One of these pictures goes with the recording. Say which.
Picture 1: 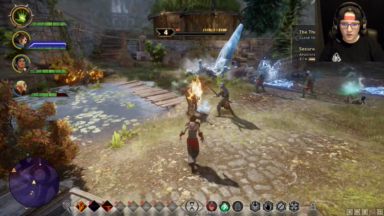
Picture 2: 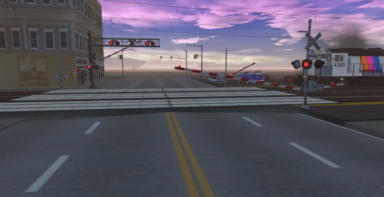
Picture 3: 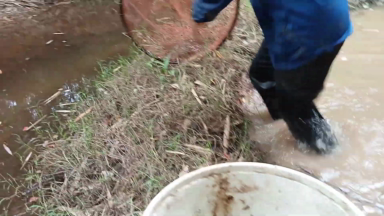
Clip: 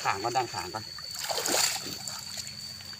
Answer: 3